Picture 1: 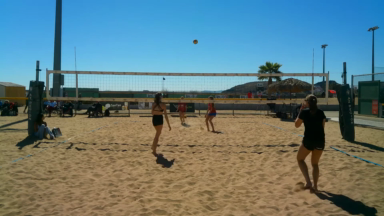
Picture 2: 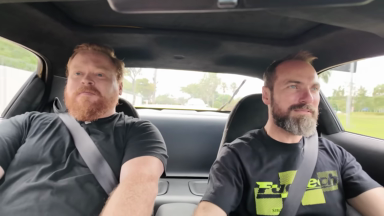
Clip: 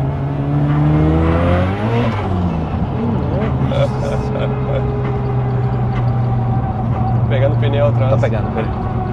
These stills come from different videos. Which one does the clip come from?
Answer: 2